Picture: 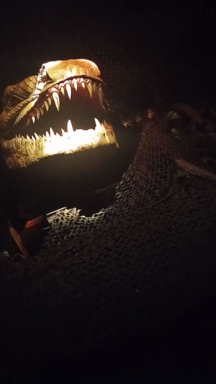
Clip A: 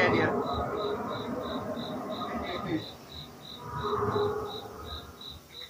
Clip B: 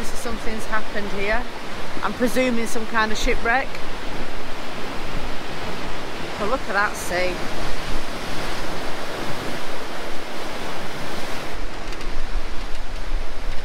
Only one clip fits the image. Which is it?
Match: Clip A